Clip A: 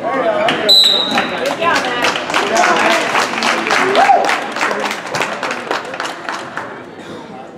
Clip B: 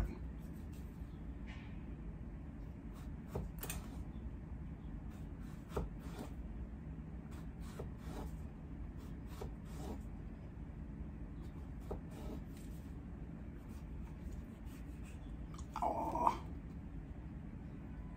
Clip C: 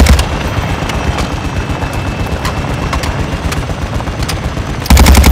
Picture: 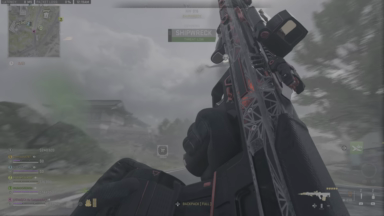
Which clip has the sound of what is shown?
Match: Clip C